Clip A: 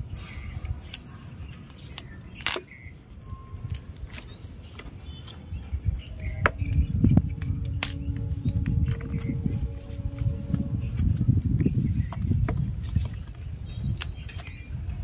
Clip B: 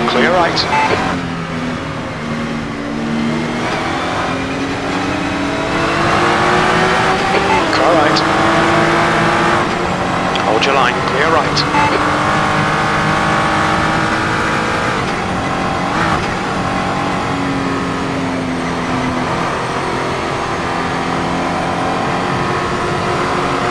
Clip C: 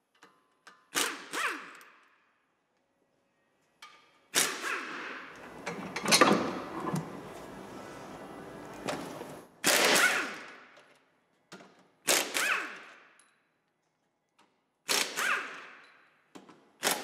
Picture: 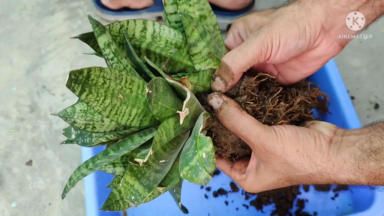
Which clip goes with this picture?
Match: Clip A